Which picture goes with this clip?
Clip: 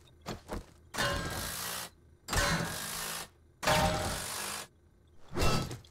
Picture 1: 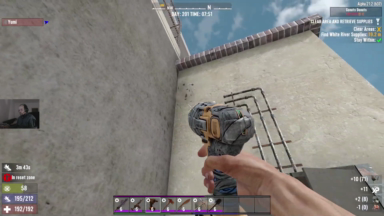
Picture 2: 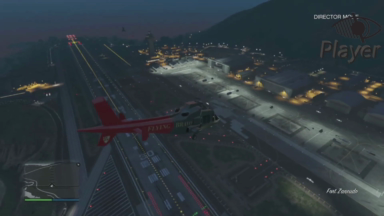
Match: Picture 1